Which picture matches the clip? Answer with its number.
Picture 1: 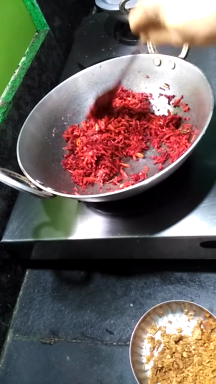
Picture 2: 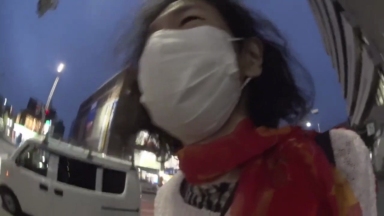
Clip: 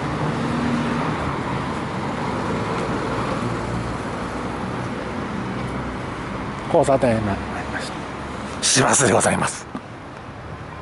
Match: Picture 2